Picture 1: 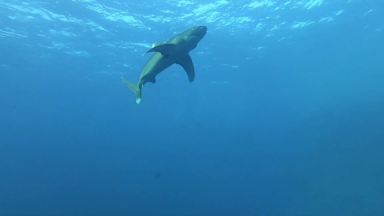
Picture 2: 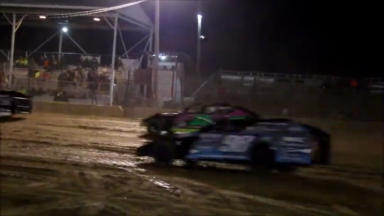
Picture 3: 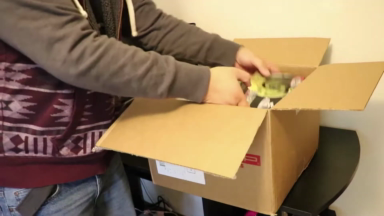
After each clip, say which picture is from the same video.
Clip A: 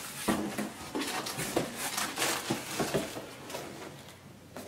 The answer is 3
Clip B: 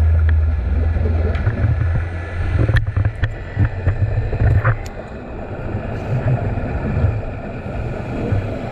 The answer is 1